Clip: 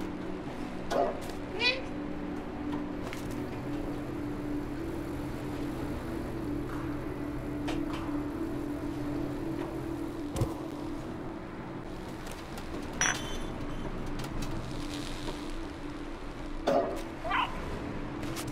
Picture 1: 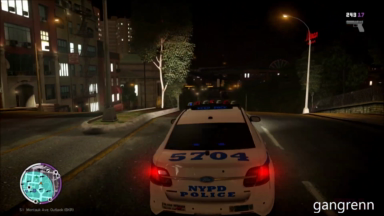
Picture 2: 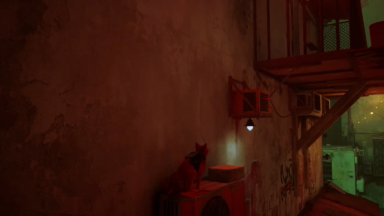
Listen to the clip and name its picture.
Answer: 2